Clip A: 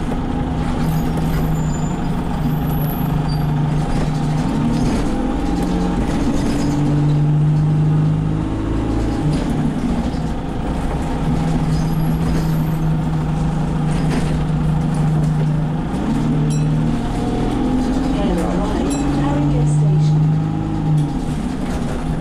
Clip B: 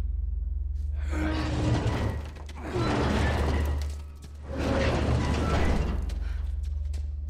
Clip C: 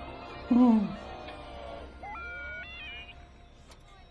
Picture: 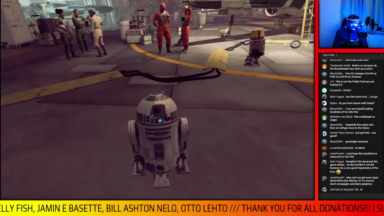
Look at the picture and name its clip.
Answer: C